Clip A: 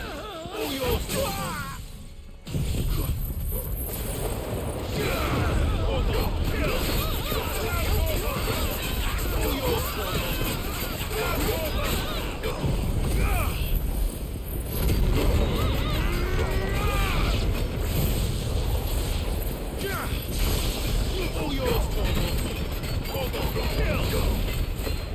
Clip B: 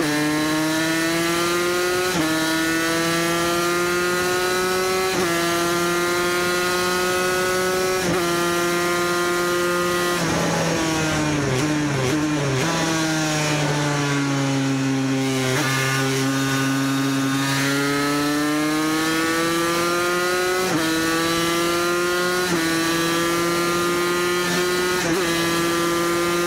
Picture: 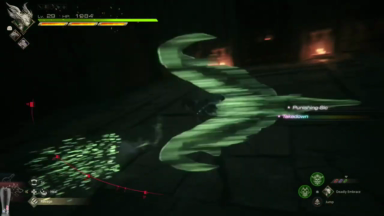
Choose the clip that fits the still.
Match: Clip A